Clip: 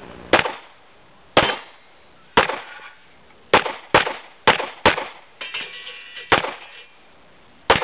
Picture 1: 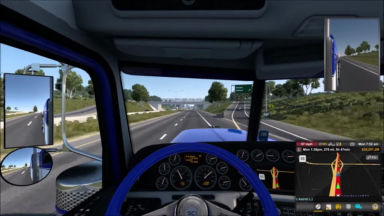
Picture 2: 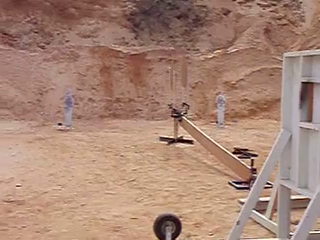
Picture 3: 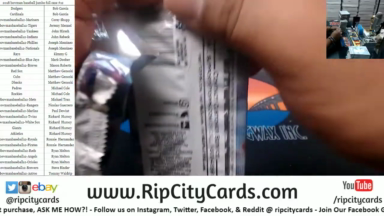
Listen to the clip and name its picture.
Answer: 2